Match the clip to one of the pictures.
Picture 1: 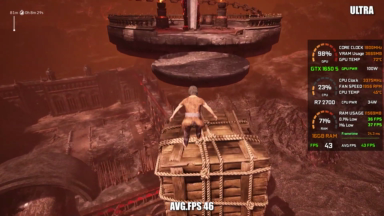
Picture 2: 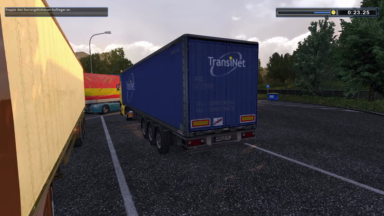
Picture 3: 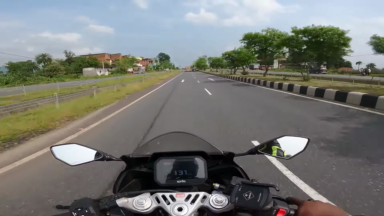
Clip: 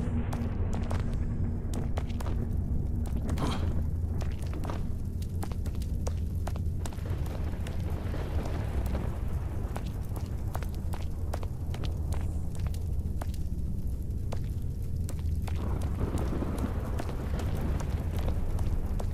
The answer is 1